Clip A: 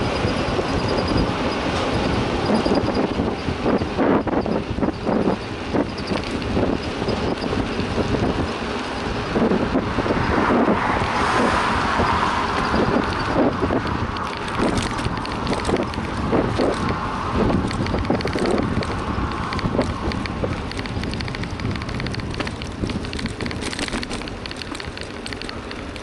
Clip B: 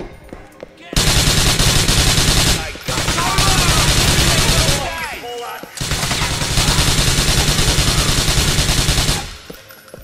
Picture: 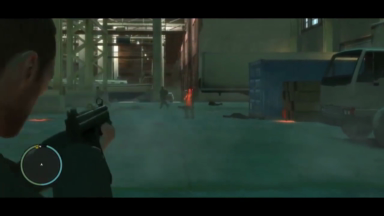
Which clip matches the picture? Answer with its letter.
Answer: B